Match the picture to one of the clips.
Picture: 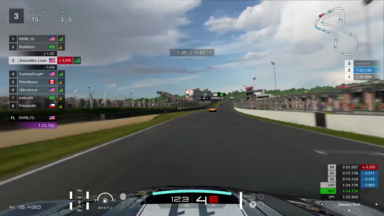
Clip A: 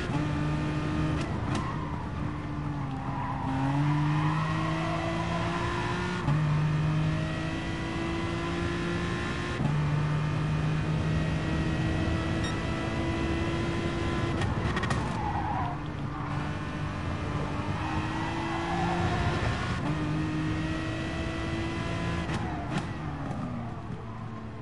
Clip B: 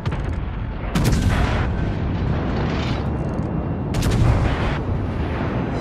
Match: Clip A